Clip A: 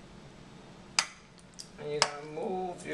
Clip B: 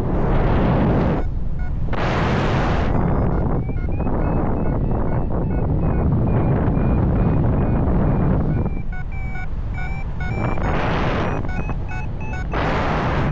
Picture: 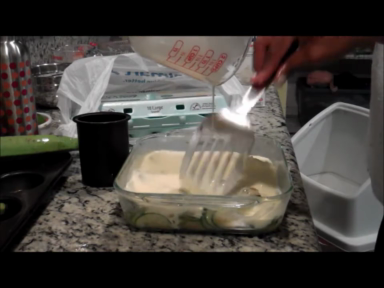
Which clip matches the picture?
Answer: A